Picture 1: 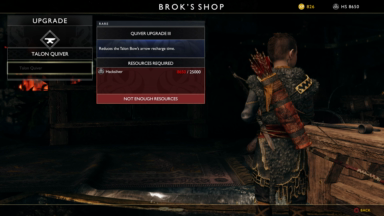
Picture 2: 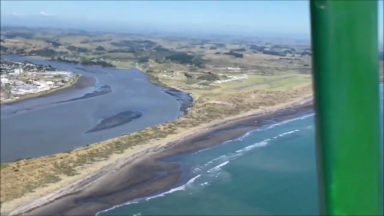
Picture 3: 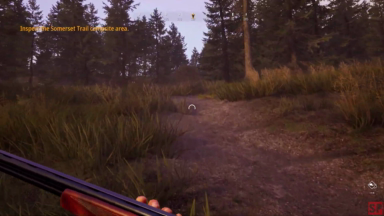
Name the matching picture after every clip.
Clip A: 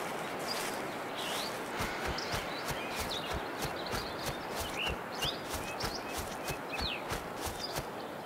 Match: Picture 3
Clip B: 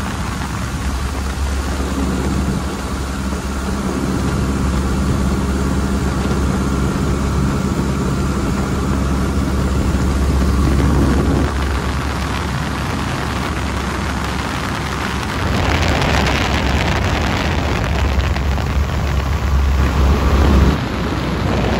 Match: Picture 2